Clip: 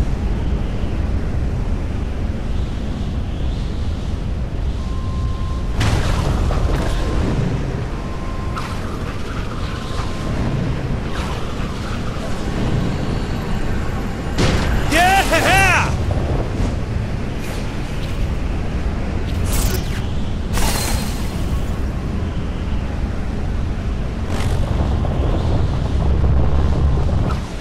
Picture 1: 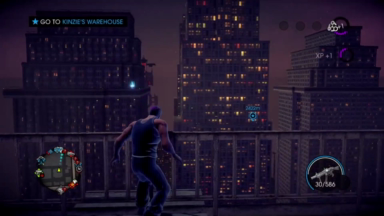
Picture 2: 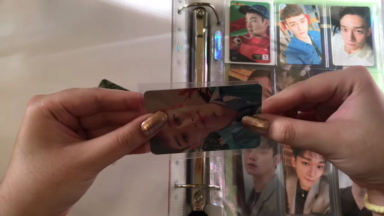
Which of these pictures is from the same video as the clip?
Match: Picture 1